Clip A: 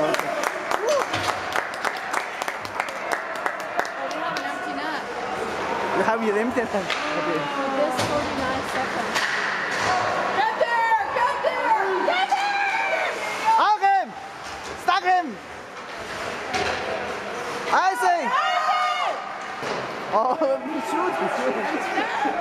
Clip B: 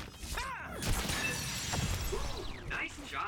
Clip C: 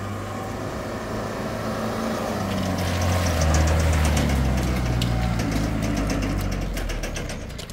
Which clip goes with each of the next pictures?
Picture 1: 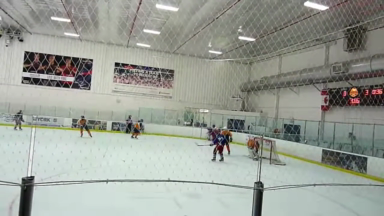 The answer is A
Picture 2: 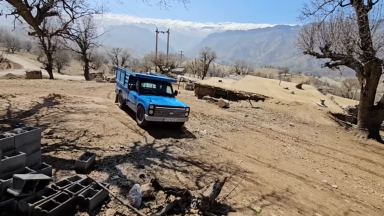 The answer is C